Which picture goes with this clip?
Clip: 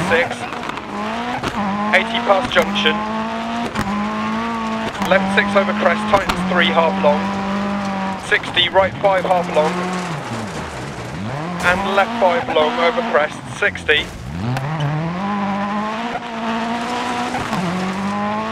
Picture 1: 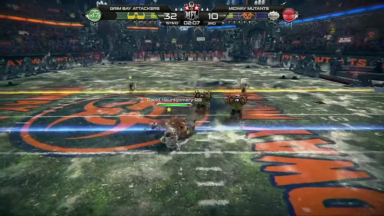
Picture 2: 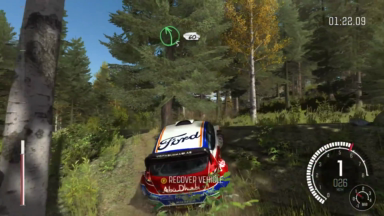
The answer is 2